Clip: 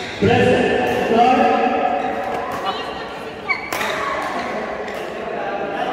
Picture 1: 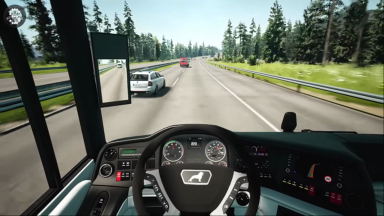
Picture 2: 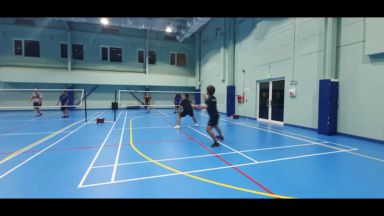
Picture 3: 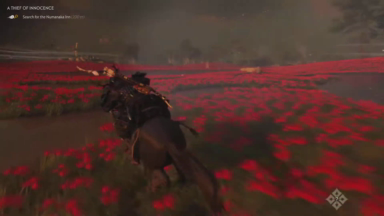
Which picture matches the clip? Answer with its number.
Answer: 2